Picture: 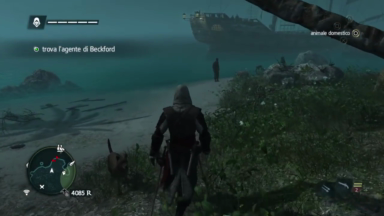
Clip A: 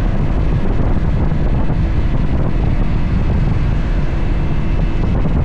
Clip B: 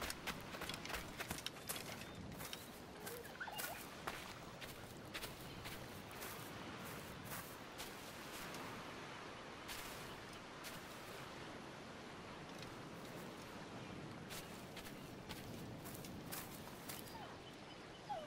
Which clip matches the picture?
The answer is B